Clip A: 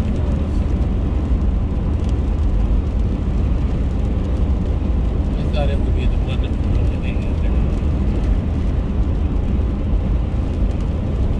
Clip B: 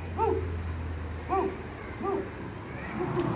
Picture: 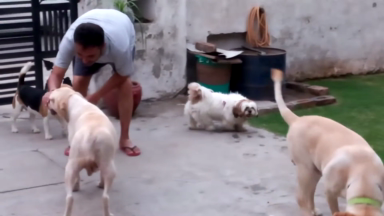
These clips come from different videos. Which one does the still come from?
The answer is B